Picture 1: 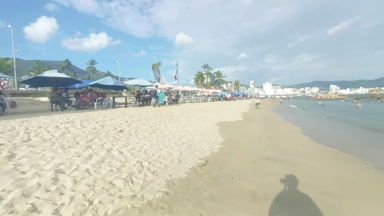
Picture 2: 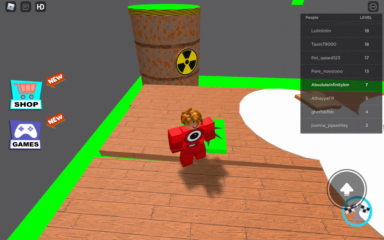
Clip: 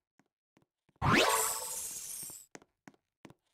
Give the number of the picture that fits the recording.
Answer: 2